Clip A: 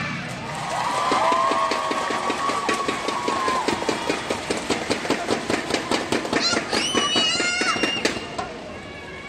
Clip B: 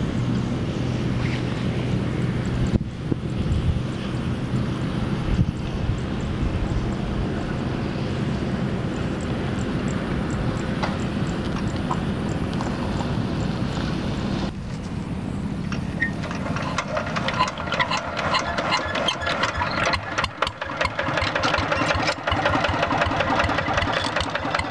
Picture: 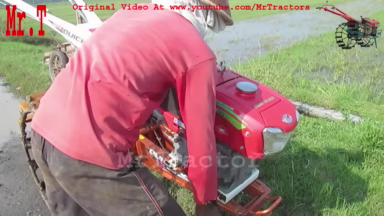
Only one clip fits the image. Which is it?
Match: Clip B